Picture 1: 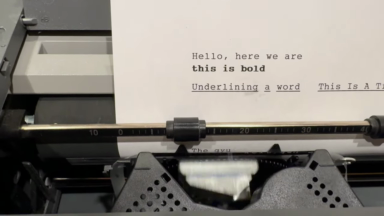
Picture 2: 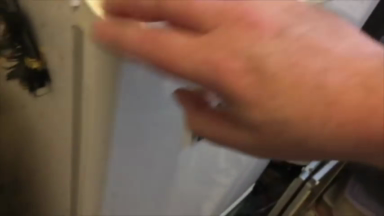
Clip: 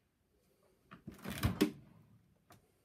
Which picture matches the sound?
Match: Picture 2